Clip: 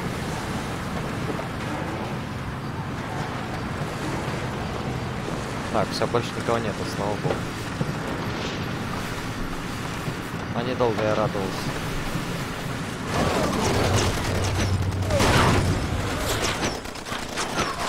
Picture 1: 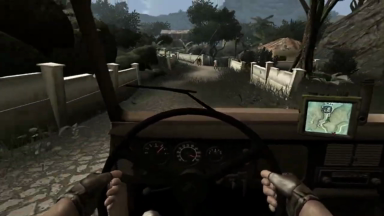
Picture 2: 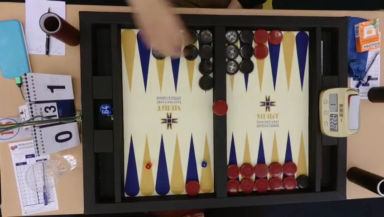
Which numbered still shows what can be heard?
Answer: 1